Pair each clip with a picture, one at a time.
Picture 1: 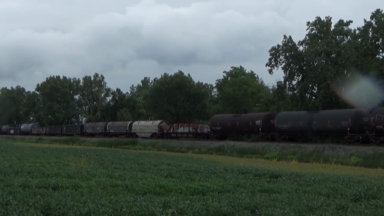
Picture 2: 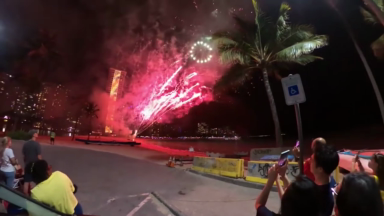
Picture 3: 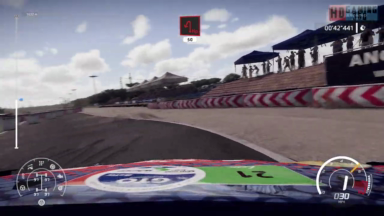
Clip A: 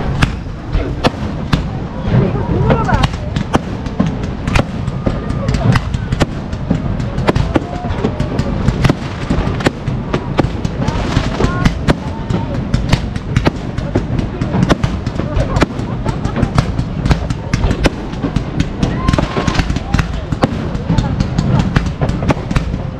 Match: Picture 2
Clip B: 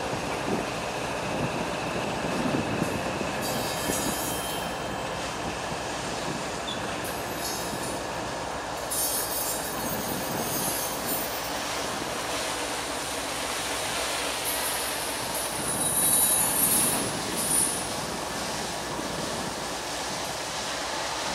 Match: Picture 1